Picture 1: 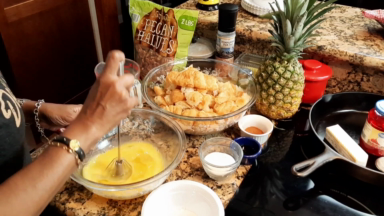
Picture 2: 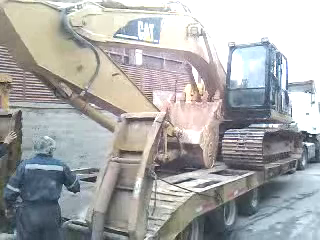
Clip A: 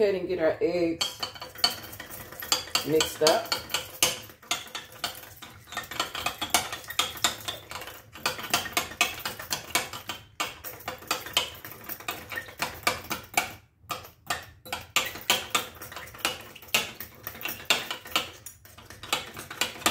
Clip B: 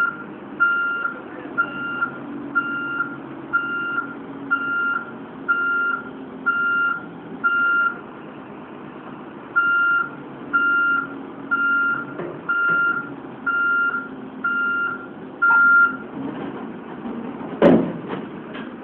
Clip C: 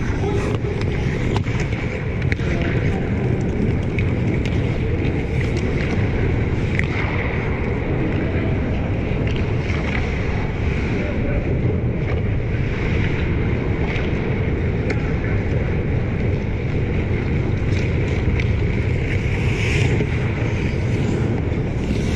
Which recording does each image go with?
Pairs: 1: A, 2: B